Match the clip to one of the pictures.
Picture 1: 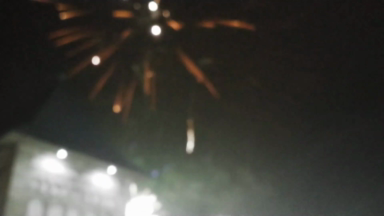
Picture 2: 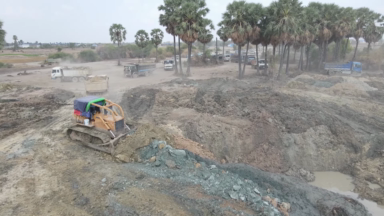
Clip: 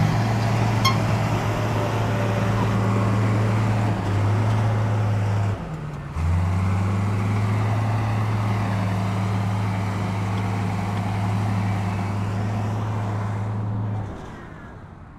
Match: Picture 2